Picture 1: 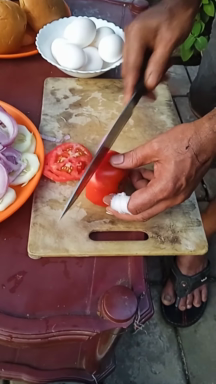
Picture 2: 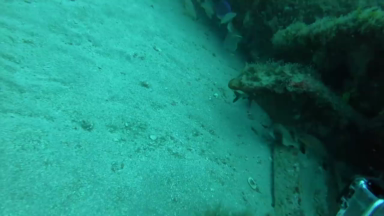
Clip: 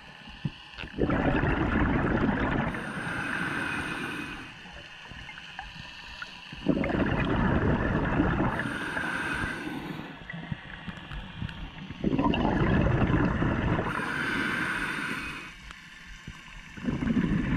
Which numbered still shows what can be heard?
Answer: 2